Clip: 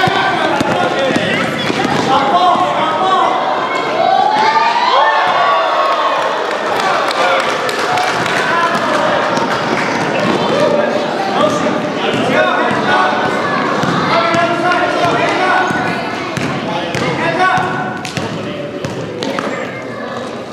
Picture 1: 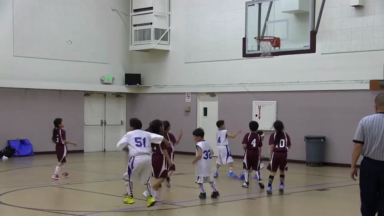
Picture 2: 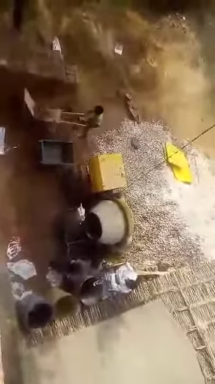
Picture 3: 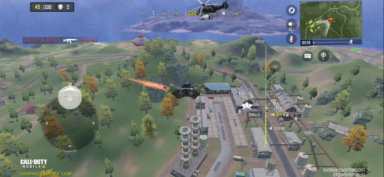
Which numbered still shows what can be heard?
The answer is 1